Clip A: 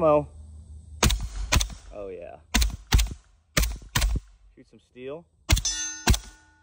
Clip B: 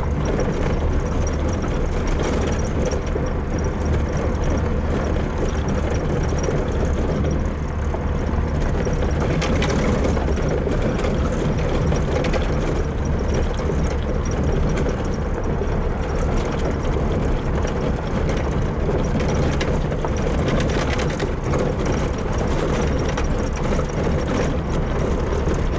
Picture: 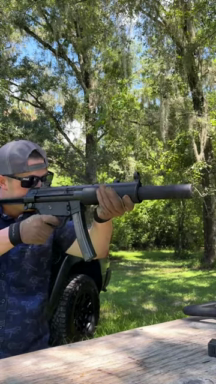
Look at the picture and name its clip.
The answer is A